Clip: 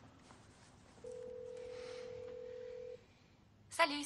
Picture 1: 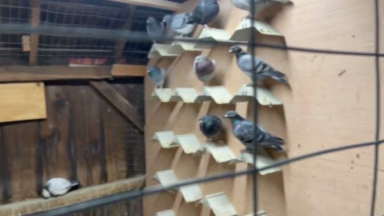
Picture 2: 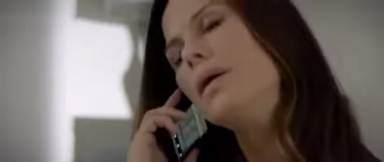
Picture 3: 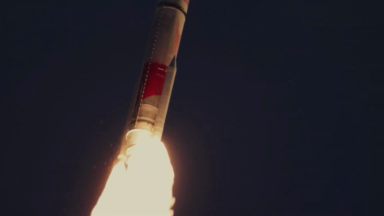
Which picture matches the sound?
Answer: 2